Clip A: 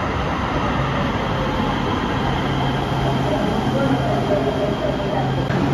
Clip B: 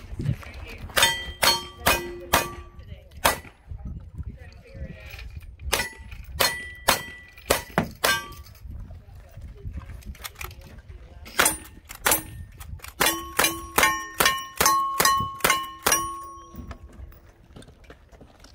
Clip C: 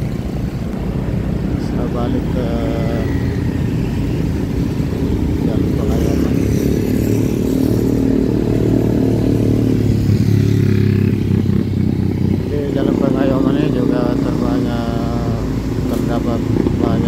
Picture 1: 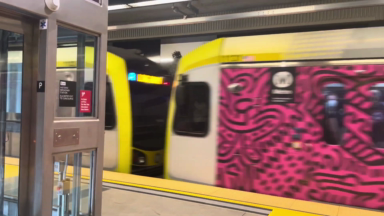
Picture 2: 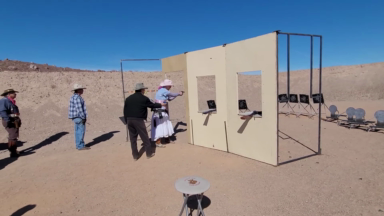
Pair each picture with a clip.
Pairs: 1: A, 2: B